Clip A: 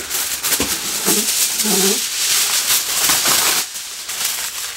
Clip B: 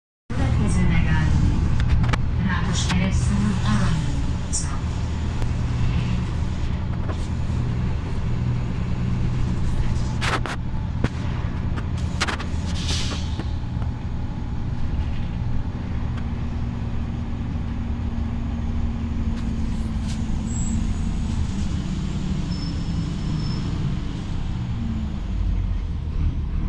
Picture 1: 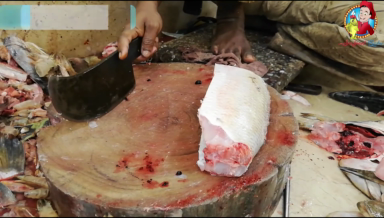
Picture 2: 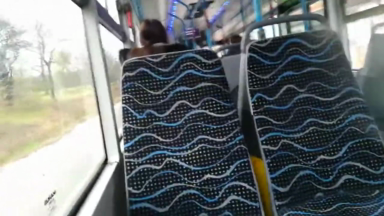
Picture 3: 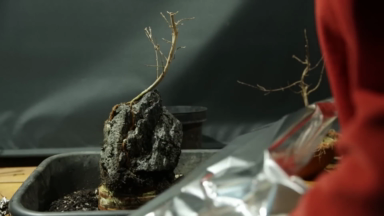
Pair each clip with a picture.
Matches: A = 3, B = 2